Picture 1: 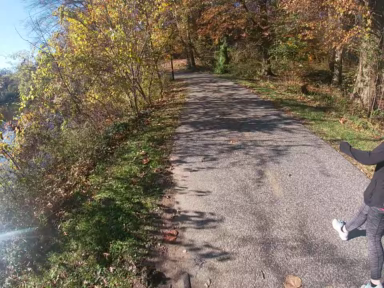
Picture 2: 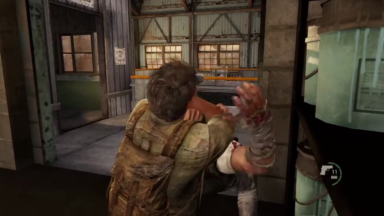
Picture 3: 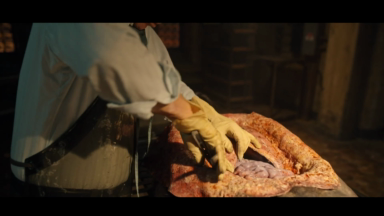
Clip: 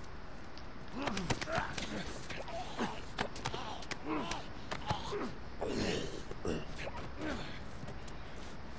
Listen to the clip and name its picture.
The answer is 2